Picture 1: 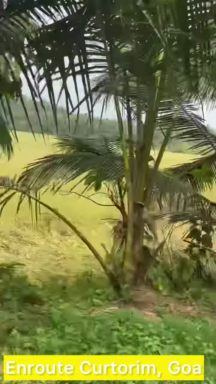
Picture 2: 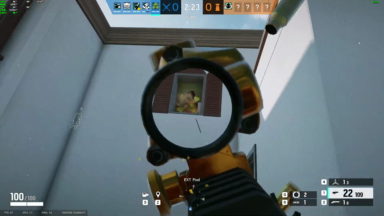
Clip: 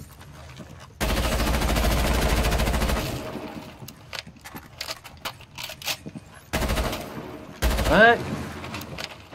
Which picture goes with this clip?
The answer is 2